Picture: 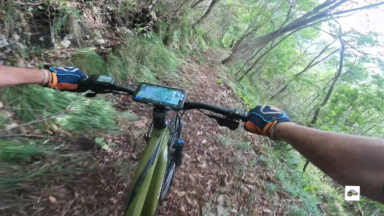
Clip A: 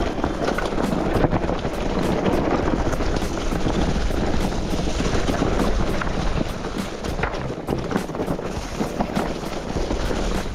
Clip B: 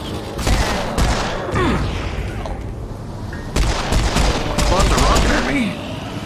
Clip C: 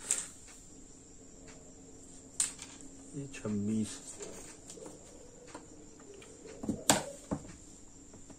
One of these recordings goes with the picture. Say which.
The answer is A